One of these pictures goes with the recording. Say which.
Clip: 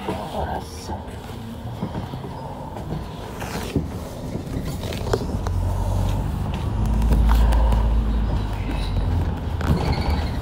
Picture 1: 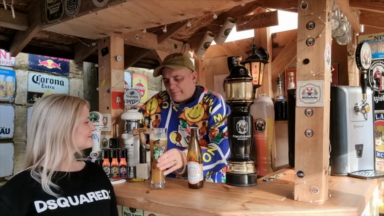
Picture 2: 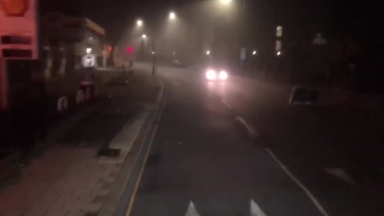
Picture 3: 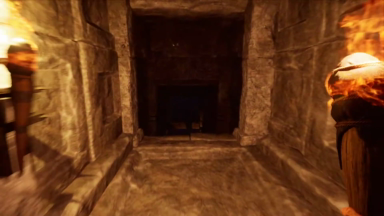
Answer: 2